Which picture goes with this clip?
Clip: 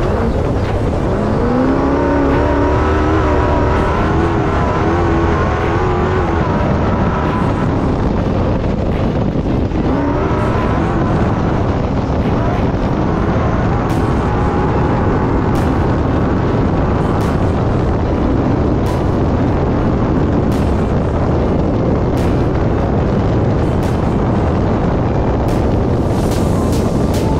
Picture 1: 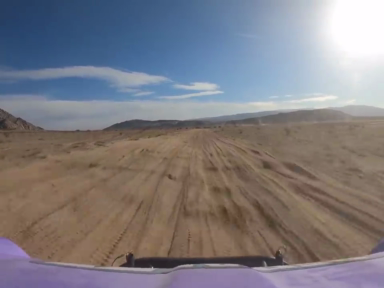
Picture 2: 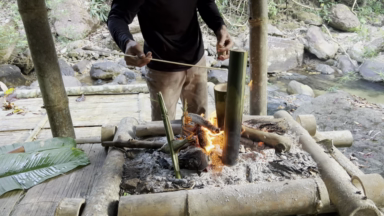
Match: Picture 1